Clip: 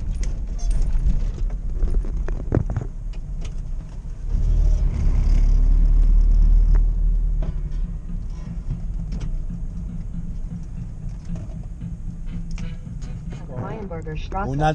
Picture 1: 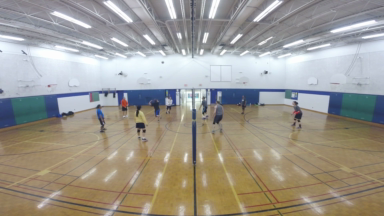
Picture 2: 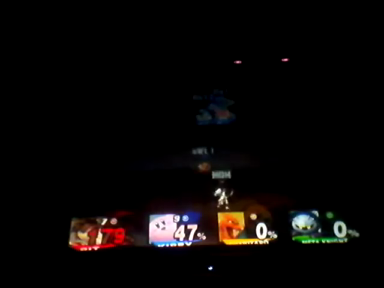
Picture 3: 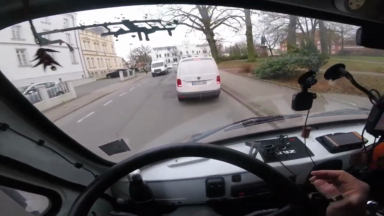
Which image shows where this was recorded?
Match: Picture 3